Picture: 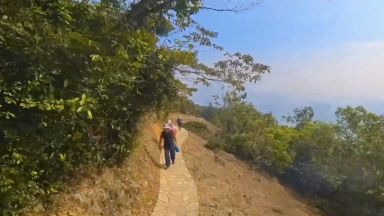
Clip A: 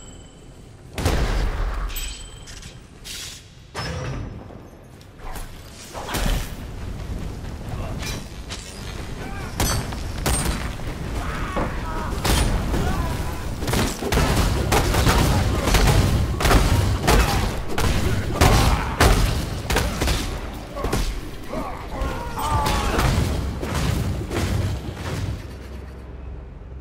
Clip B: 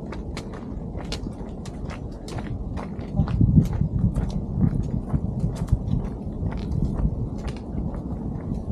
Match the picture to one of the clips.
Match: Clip B